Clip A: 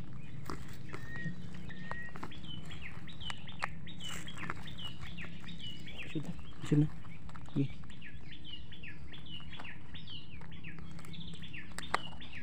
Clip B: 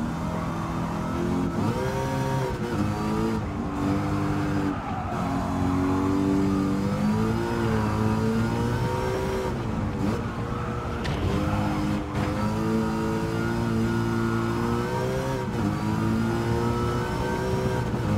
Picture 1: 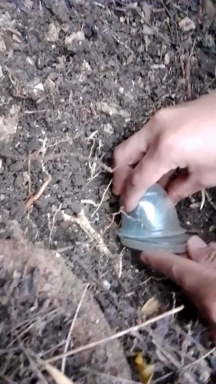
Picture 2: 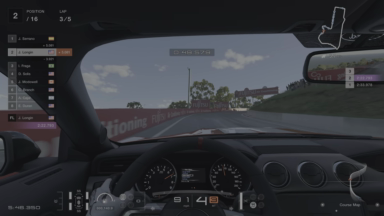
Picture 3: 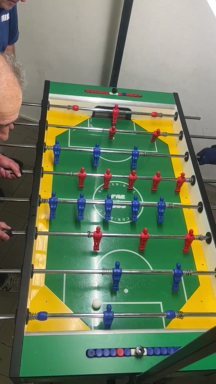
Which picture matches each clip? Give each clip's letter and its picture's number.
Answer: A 1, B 2